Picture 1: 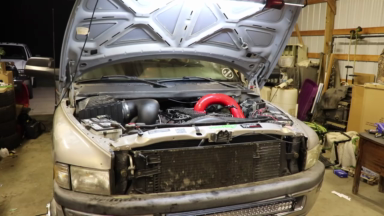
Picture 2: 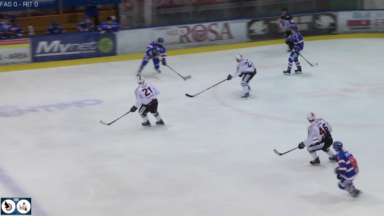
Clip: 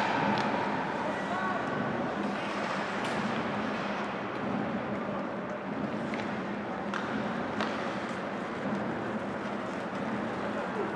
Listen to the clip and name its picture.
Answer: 2